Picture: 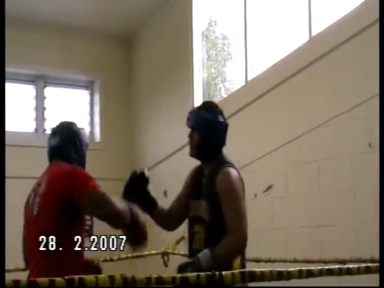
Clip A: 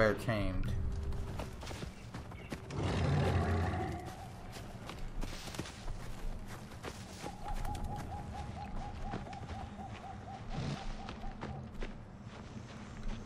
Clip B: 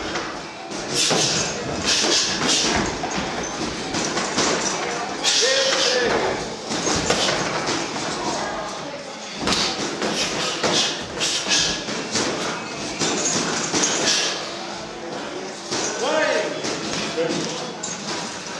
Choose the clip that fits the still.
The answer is B